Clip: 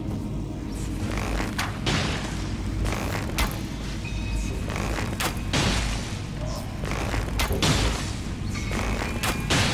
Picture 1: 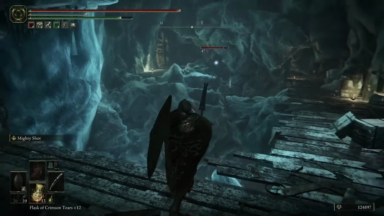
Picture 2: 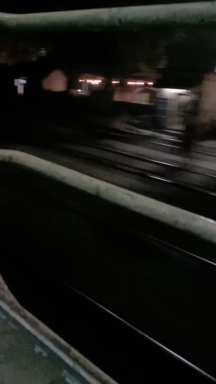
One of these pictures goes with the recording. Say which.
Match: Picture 1